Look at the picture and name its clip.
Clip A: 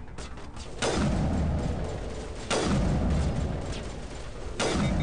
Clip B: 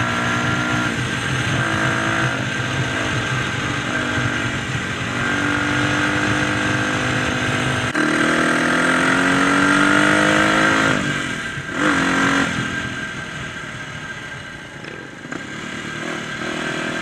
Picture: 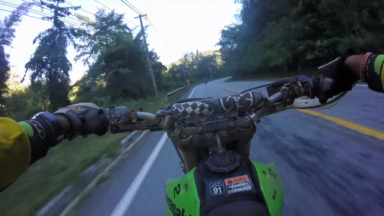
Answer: B